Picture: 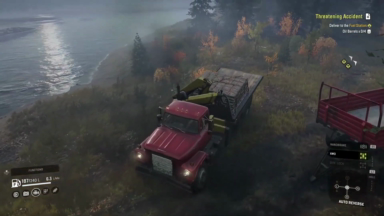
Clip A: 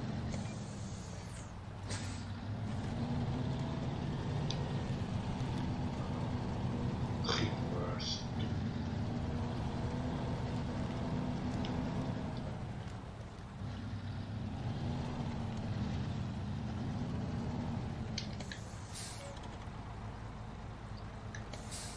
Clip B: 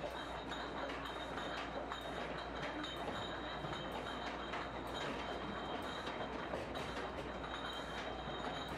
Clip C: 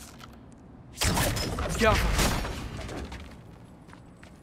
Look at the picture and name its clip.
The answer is A